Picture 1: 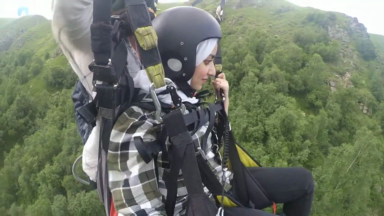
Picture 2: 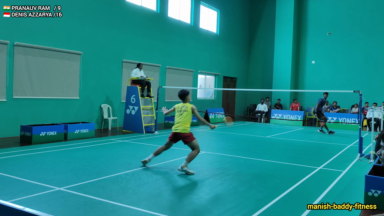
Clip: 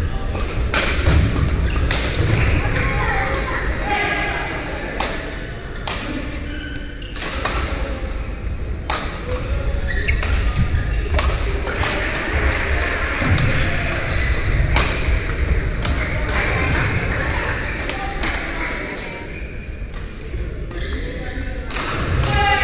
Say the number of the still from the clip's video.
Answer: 2